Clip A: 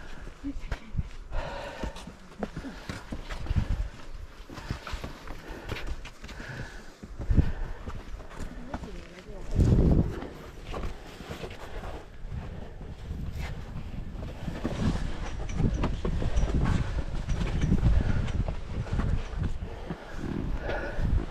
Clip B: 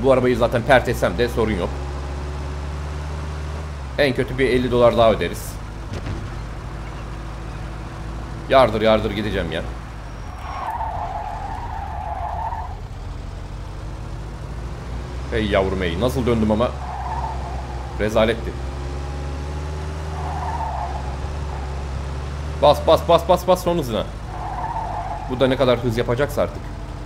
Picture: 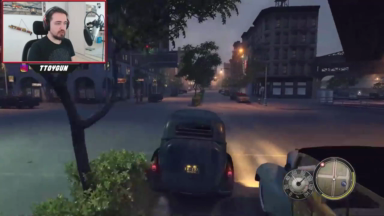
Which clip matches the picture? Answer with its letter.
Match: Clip B